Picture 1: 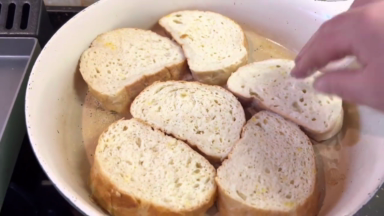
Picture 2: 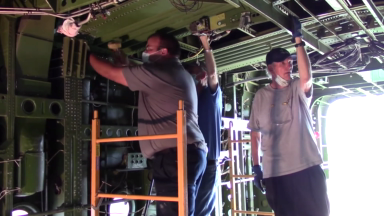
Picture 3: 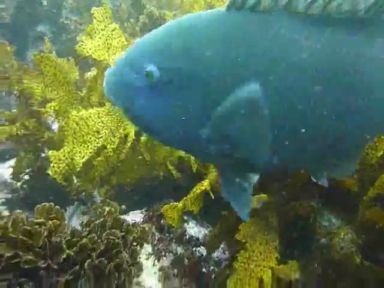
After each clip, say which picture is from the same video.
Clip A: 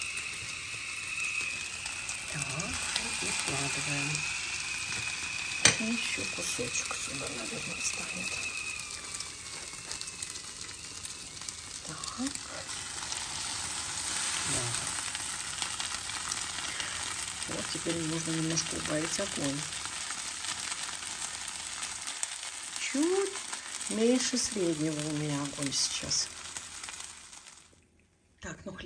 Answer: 1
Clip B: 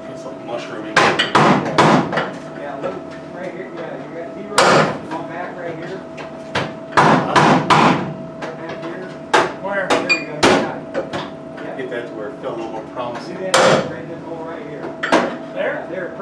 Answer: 2